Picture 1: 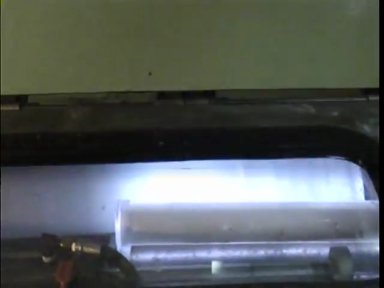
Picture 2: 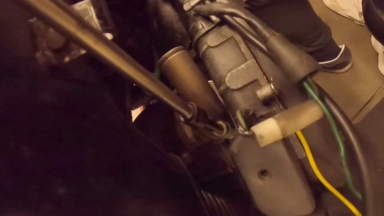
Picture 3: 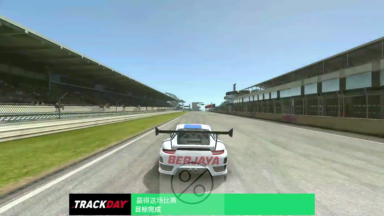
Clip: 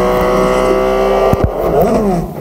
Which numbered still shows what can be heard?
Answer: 3